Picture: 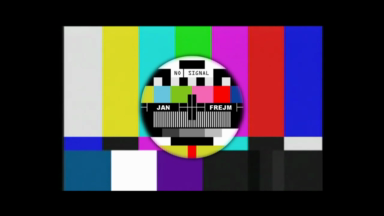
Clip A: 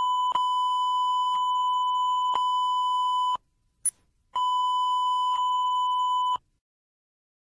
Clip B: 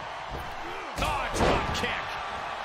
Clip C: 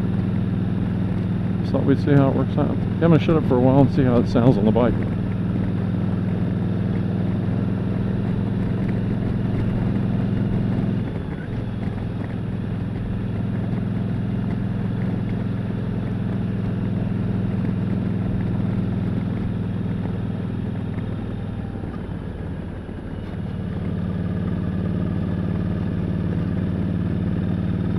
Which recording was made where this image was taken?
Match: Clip A